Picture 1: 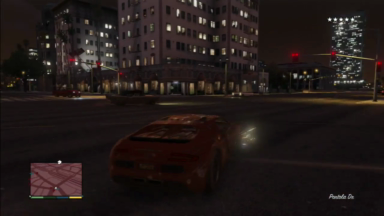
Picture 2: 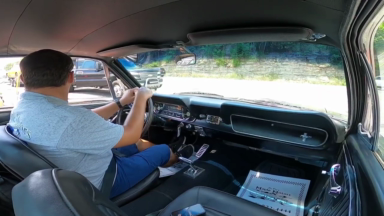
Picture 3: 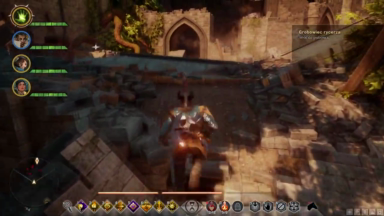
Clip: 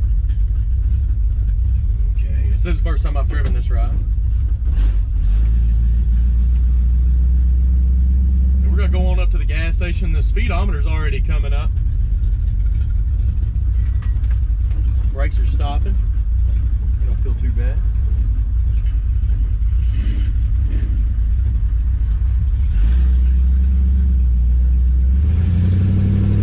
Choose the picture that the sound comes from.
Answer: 2